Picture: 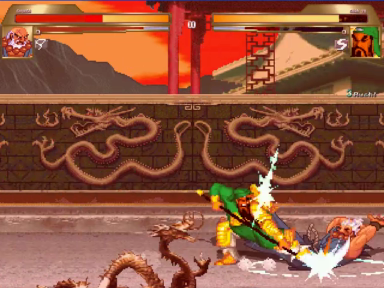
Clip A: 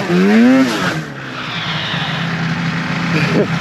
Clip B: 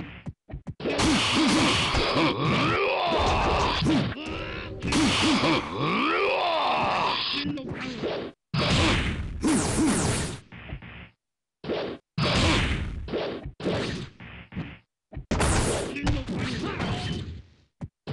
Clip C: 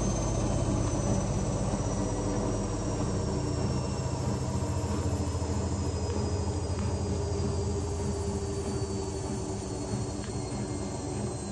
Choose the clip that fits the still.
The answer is B